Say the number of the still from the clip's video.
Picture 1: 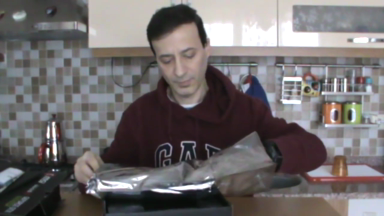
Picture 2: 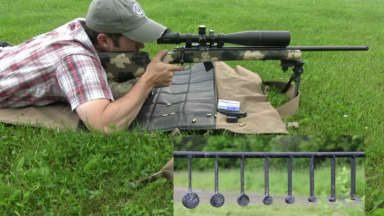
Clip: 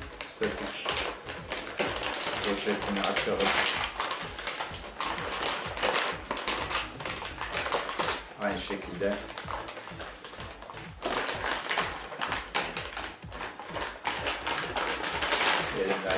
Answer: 1